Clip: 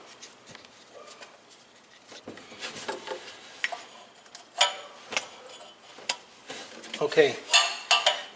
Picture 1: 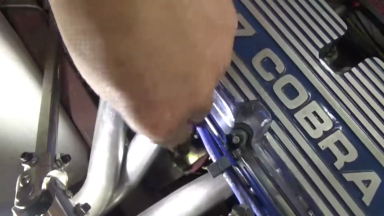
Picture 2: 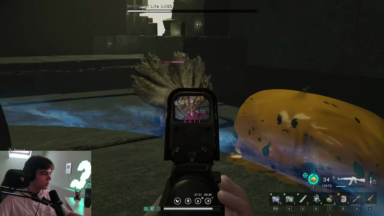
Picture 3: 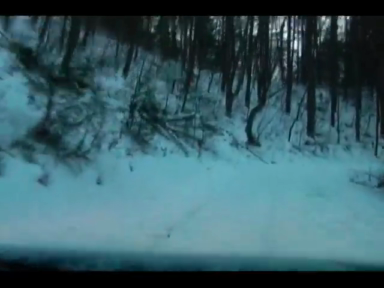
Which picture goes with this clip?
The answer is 1